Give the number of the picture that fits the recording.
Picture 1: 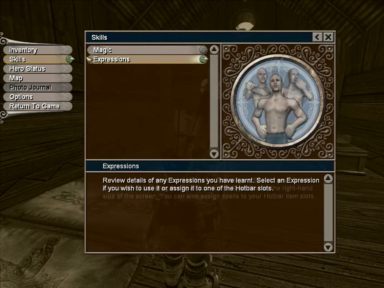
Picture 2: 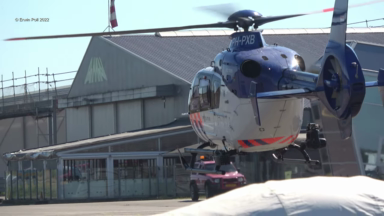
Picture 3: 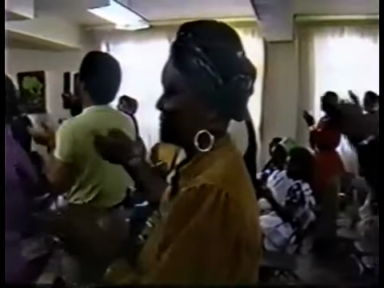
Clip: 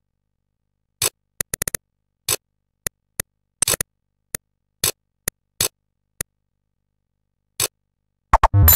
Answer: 1